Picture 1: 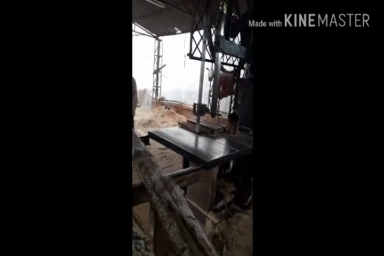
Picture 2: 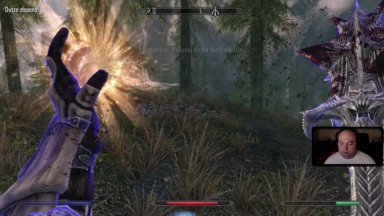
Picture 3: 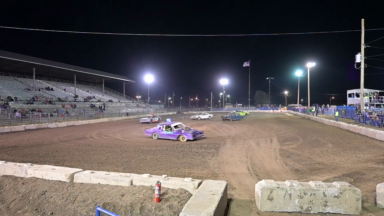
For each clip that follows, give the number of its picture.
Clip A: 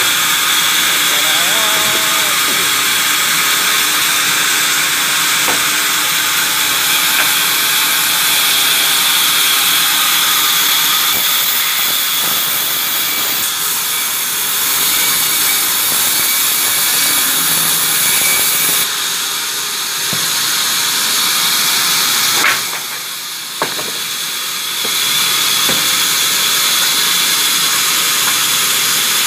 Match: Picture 1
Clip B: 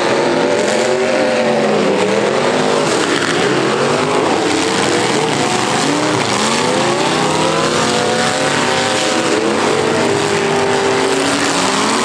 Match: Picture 3